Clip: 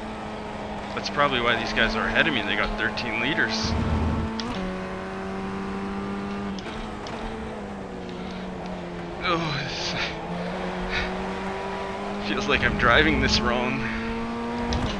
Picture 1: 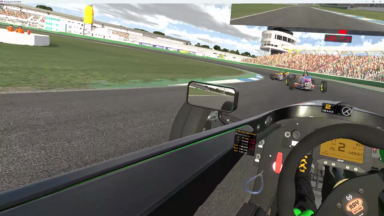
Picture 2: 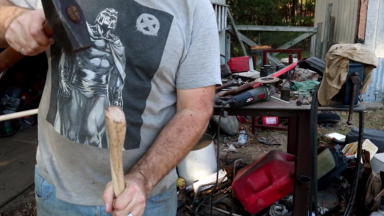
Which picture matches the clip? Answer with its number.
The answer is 1